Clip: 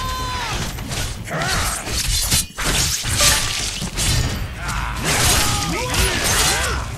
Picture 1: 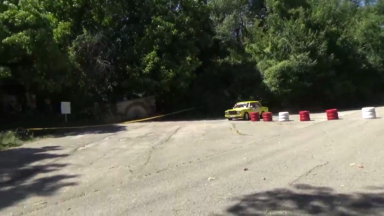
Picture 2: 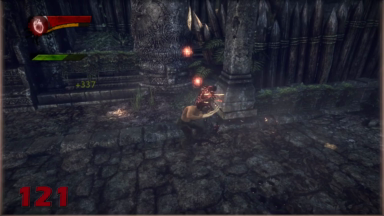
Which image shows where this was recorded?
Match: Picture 2